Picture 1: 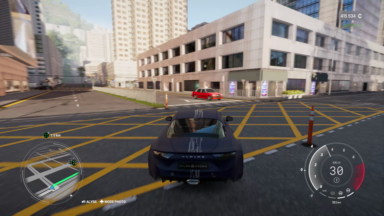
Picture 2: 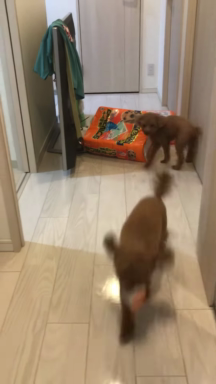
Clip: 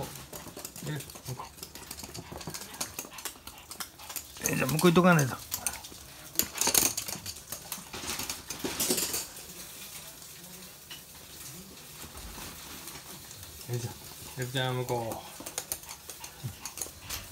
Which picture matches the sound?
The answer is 2